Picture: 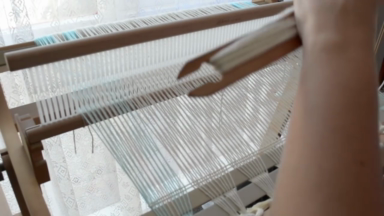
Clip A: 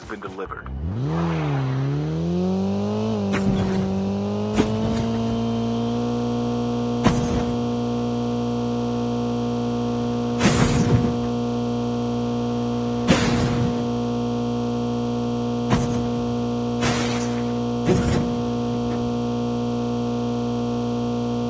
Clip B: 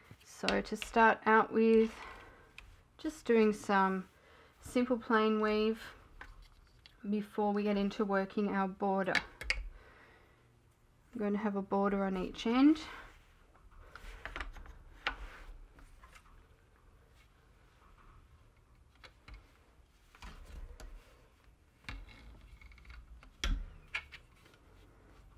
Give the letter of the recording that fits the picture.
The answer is B